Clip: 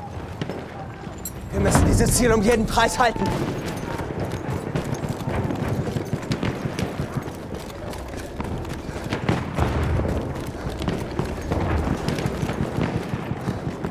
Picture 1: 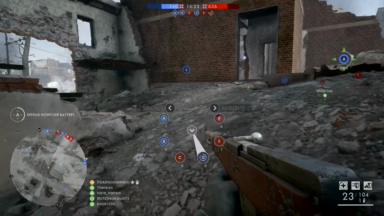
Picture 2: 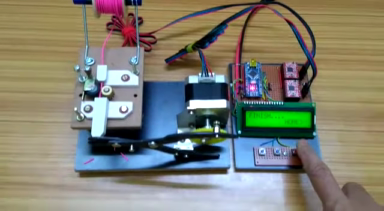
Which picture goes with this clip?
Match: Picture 1